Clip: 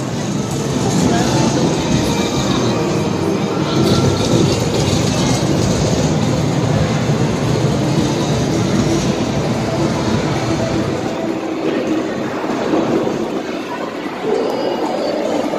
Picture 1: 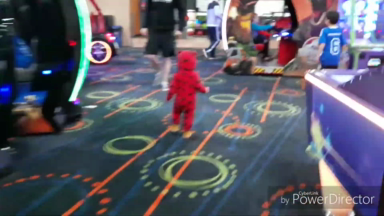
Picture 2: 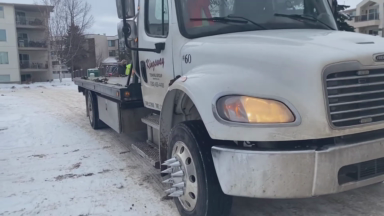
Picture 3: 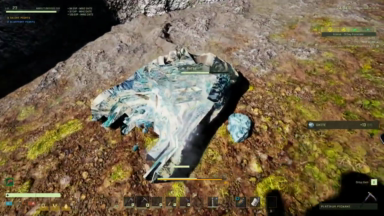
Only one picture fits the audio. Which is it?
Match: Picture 1